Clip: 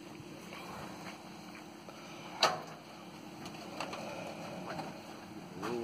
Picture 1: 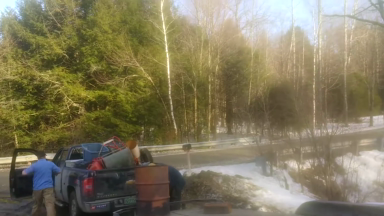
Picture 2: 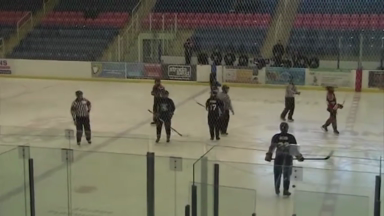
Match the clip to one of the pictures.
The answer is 1